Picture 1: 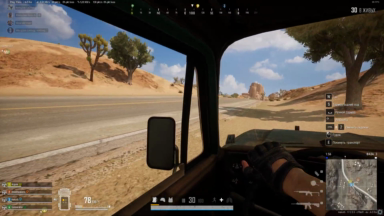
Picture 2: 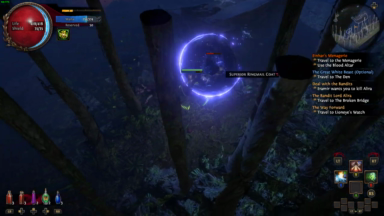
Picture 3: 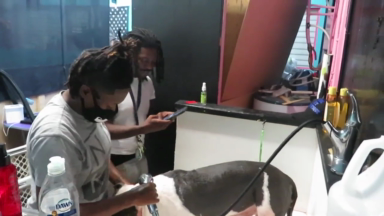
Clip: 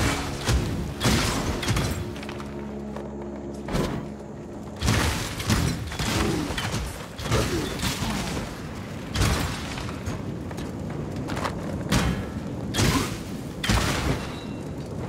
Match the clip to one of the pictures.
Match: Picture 2